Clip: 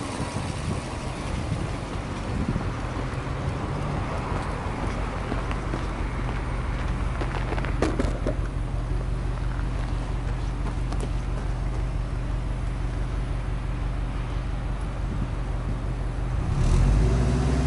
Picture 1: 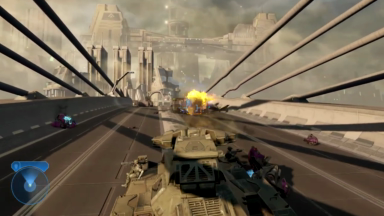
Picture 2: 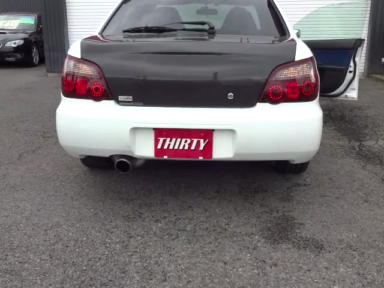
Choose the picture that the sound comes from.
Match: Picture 2